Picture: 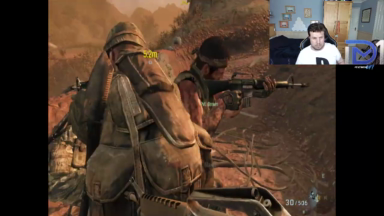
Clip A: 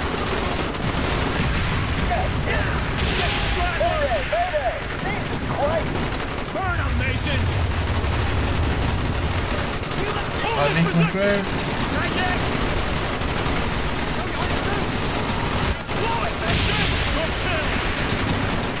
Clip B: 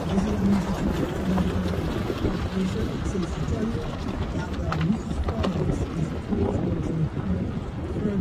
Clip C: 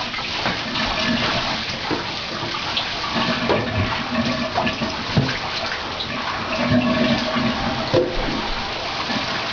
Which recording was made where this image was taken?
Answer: A